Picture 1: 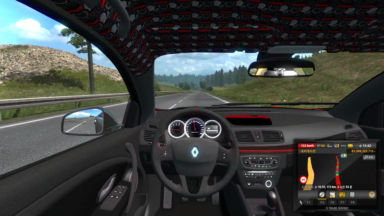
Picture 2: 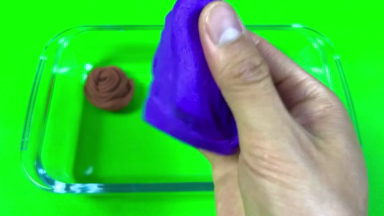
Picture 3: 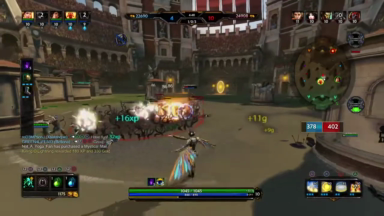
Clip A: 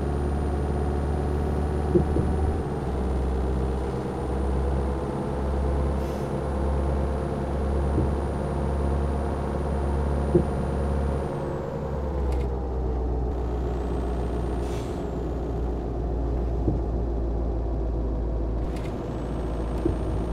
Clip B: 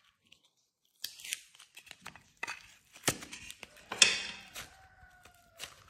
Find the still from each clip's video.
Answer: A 1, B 2